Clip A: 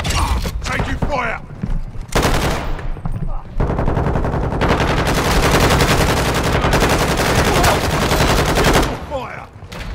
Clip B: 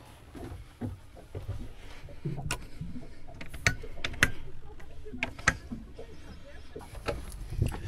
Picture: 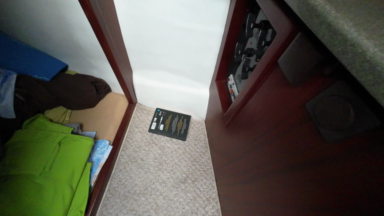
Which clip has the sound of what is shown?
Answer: B